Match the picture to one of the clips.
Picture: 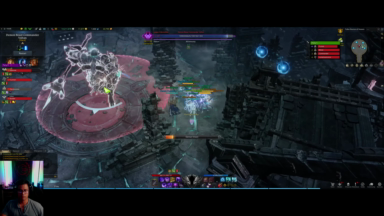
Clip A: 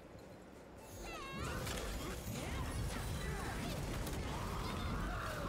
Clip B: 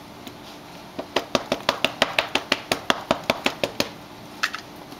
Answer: A